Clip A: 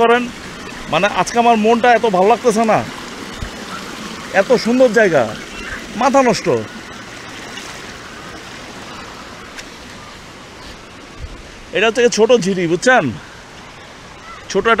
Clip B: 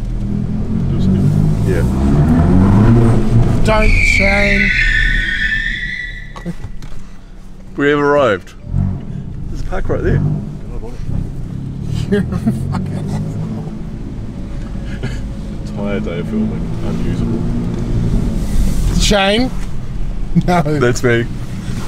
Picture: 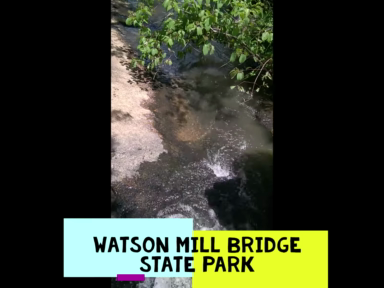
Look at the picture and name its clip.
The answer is A